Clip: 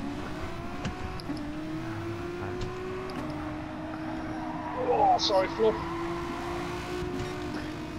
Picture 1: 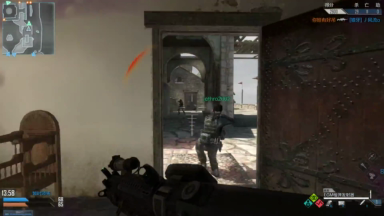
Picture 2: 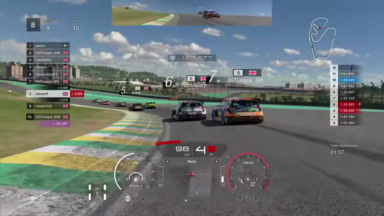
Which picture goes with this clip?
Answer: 2